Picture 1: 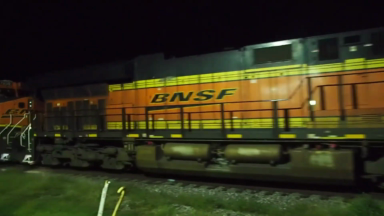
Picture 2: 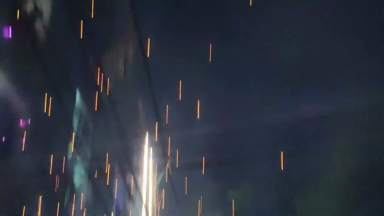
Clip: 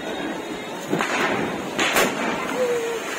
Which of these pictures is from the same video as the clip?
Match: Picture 2